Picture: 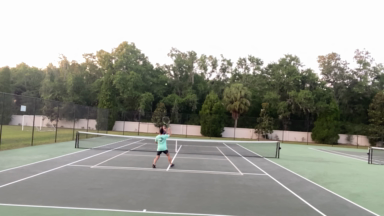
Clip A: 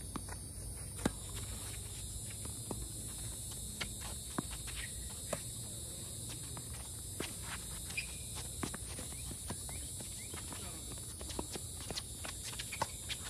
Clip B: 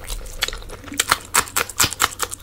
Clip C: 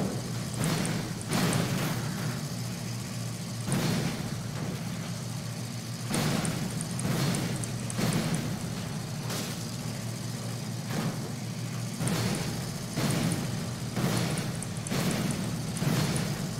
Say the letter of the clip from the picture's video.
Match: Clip A